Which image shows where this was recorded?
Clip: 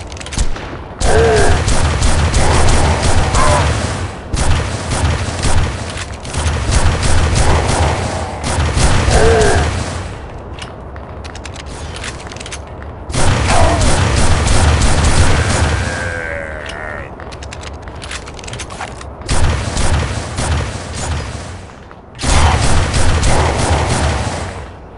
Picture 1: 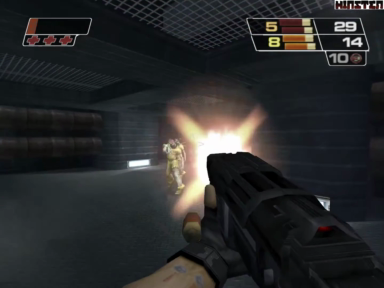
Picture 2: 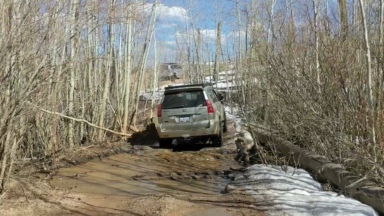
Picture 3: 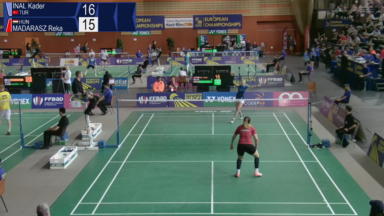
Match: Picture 1